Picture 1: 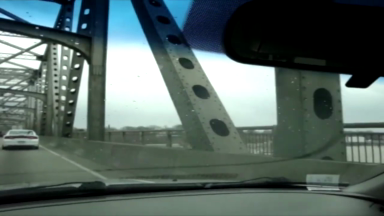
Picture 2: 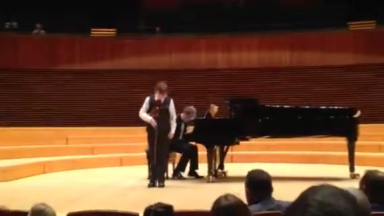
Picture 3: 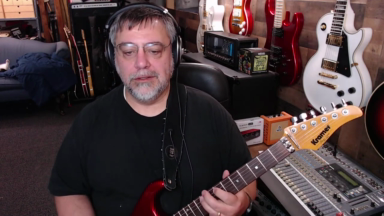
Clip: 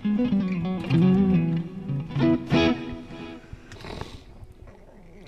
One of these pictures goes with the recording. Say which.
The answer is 3